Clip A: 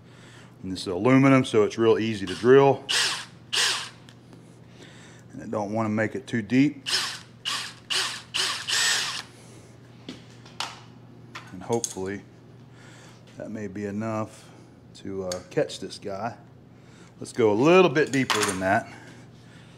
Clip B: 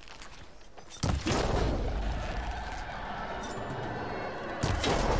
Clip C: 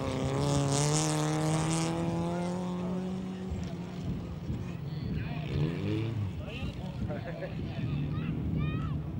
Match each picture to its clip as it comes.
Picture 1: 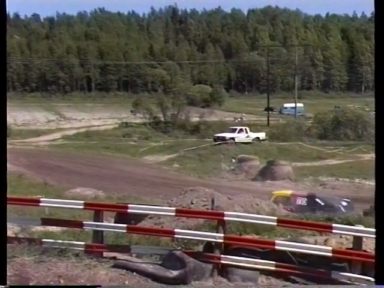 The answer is C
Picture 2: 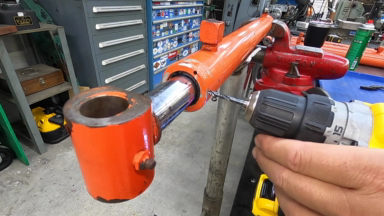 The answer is A